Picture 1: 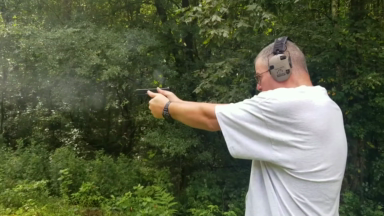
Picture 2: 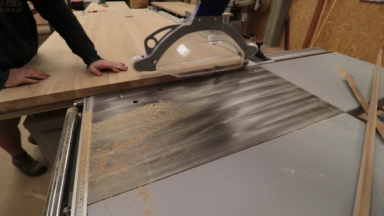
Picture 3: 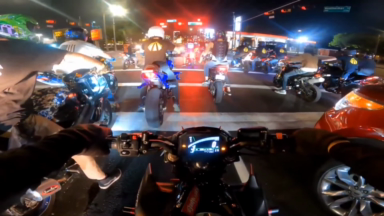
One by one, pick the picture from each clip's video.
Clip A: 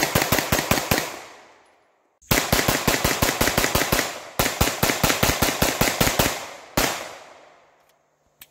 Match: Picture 1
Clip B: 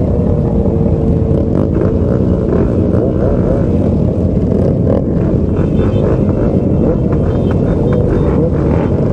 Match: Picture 3